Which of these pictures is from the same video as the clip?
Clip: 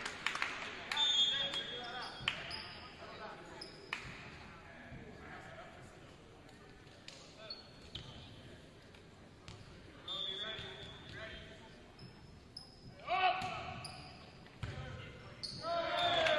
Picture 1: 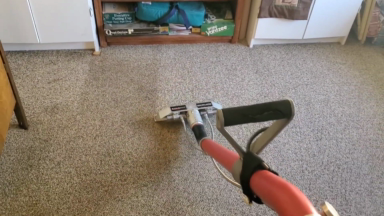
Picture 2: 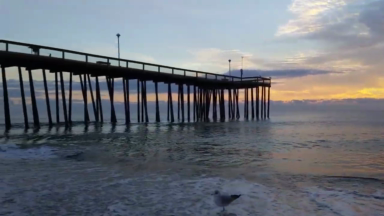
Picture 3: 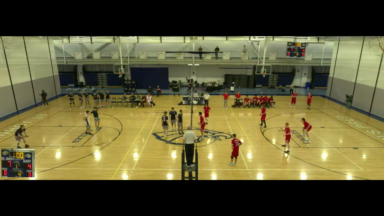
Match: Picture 3